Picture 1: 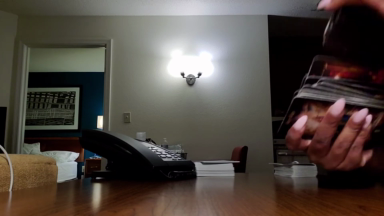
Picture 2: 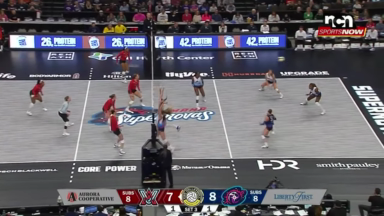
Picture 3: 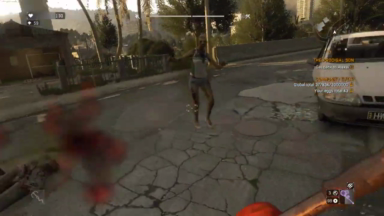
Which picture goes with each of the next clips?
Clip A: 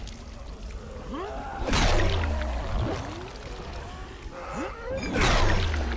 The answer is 3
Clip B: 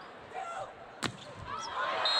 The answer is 2